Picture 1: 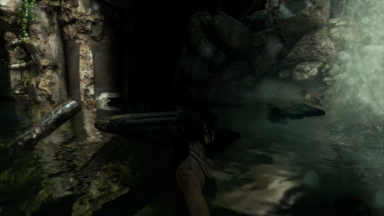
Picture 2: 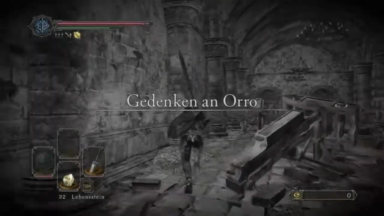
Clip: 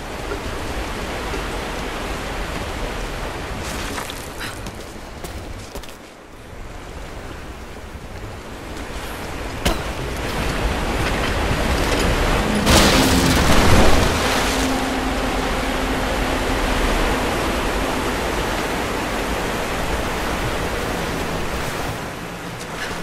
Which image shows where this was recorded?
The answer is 1